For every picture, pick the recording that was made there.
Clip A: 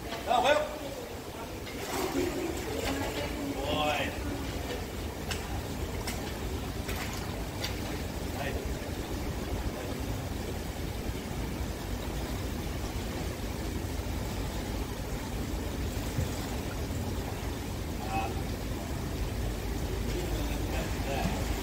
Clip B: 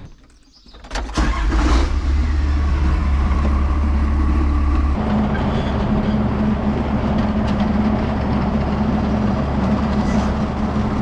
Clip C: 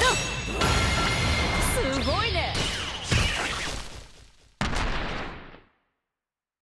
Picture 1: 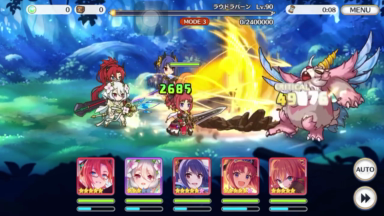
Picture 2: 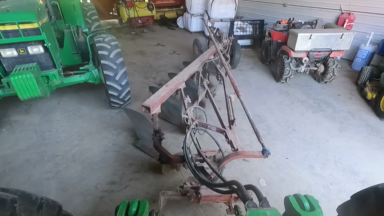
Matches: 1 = C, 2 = B